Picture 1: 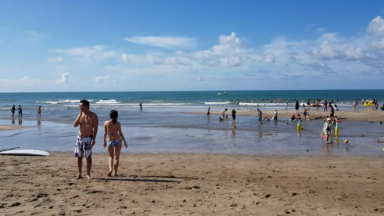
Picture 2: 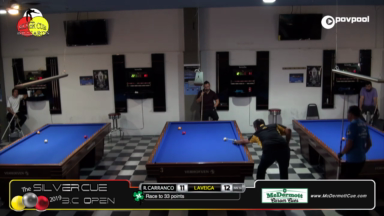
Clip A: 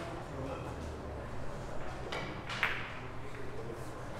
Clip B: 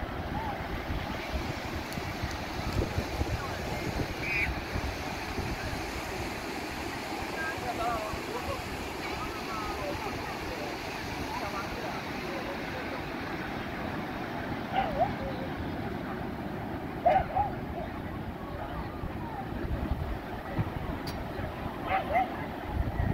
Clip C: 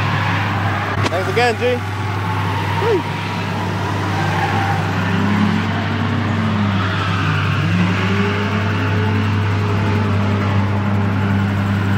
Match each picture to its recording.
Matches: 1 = B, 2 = A